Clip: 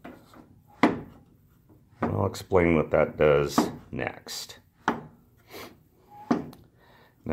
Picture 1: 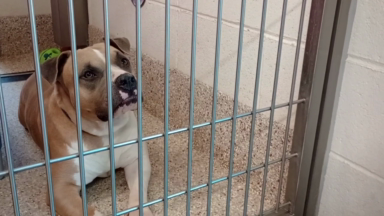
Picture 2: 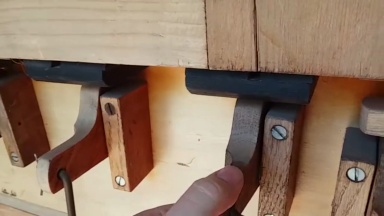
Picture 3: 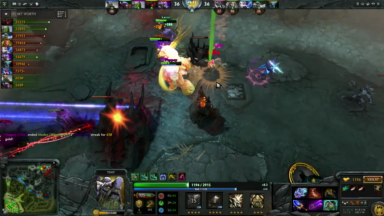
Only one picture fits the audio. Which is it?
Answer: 2